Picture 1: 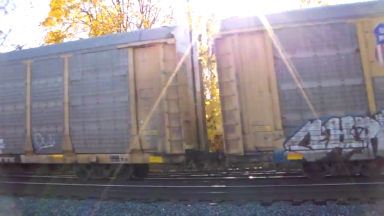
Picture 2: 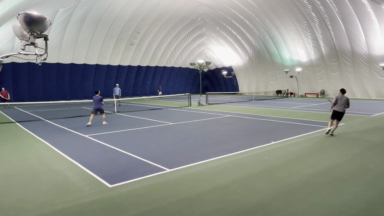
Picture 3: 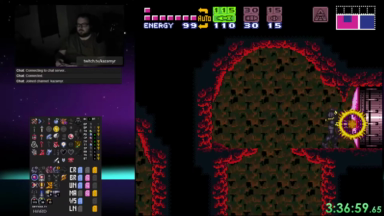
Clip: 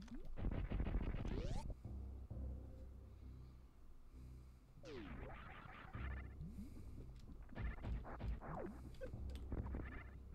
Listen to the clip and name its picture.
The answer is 3